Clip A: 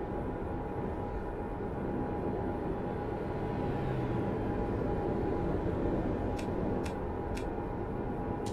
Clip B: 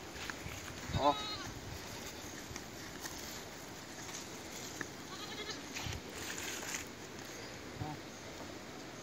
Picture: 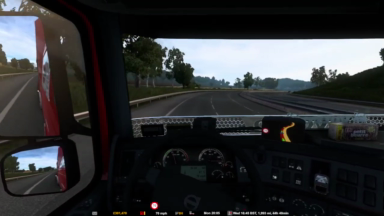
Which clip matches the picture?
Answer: A